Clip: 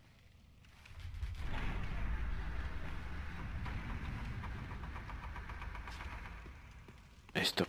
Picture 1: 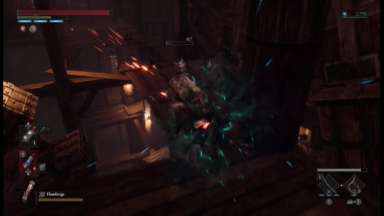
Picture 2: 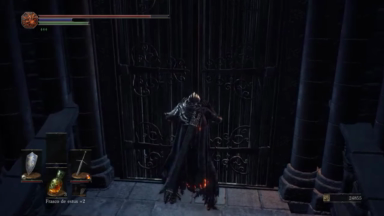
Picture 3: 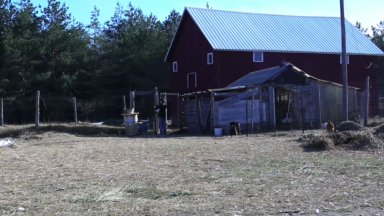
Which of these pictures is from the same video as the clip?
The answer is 2